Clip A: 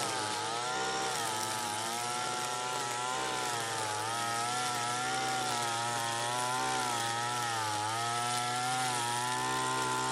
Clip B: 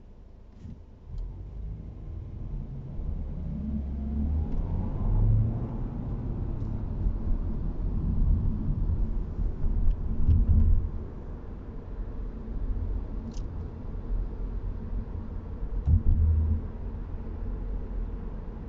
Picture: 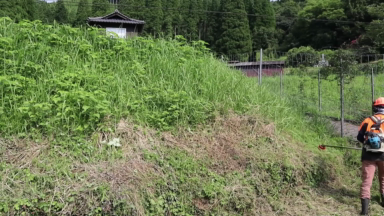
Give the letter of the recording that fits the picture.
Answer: A